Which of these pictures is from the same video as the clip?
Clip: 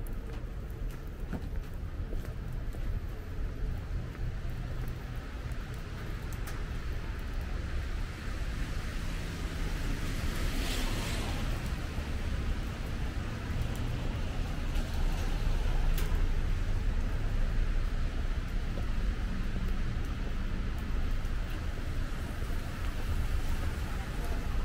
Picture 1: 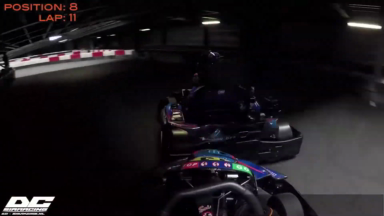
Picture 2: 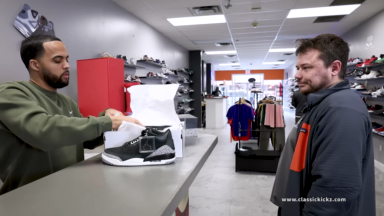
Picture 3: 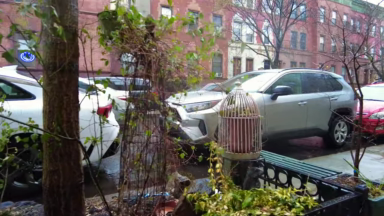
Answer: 3